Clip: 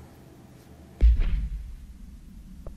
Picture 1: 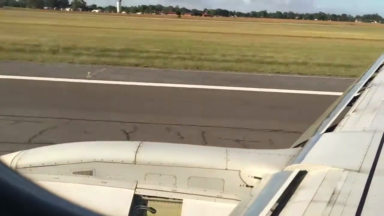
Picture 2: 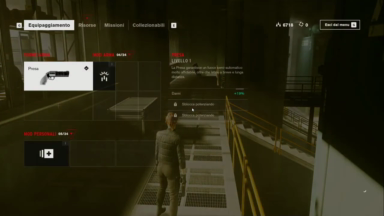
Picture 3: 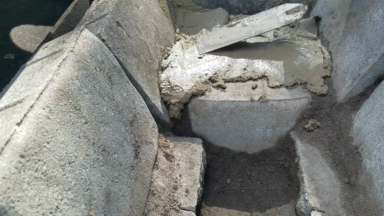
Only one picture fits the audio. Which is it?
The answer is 2